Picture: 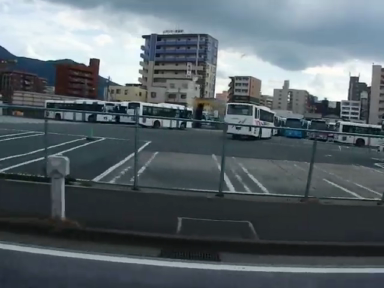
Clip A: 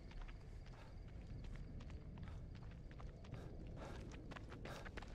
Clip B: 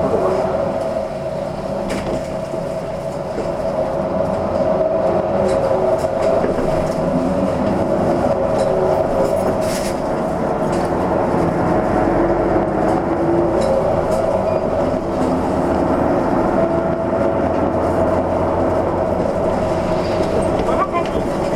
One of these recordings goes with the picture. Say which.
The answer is B